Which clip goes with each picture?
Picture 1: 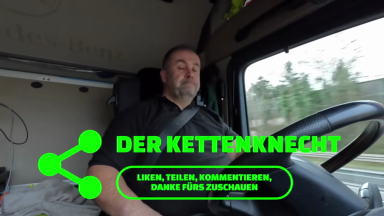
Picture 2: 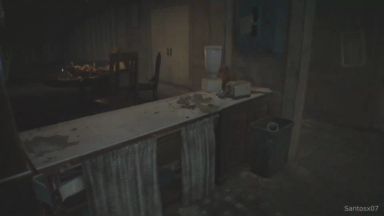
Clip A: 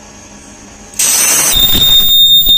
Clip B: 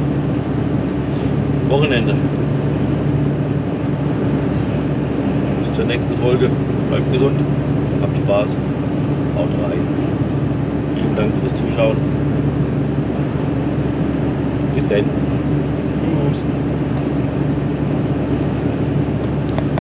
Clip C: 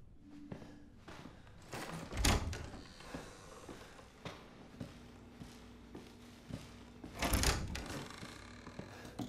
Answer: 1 B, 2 C